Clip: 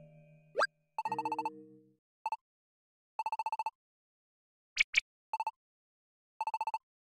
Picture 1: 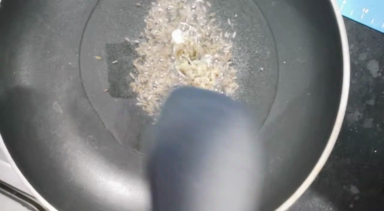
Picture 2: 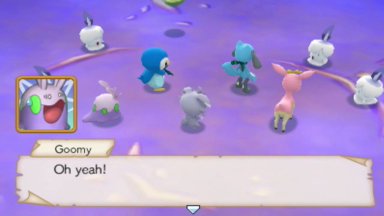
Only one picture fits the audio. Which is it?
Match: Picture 2